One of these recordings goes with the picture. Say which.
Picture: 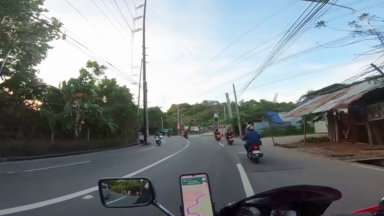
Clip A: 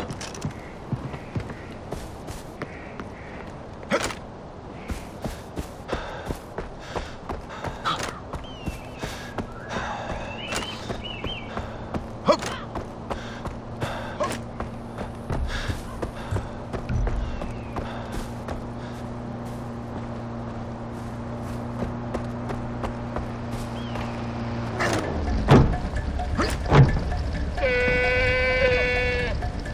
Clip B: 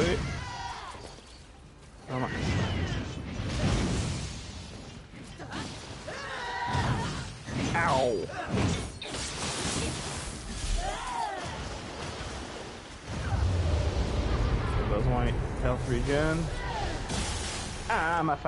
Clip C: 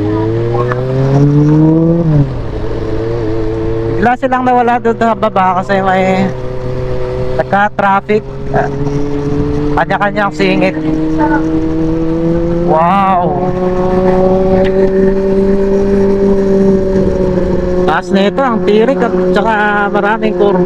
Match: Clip C